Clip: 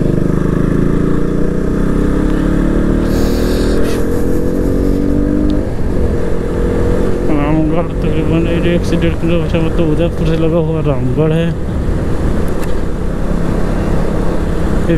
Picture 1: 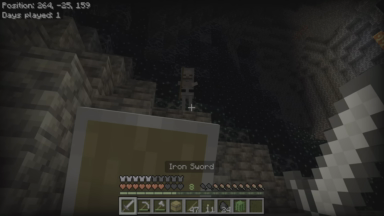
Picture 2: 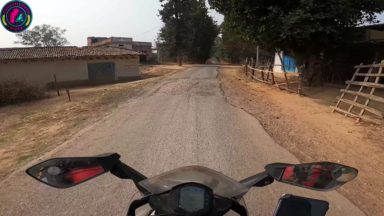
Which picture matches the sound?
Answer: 2